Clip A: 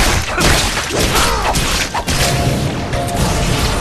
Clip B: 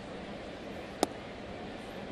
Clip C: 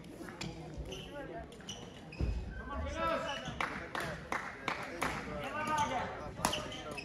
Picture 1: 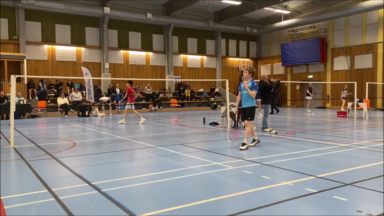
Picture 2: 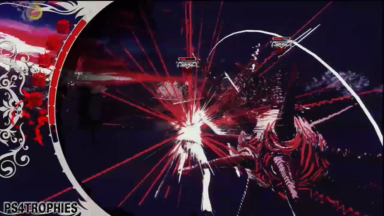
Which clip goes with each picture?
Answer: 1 C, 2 A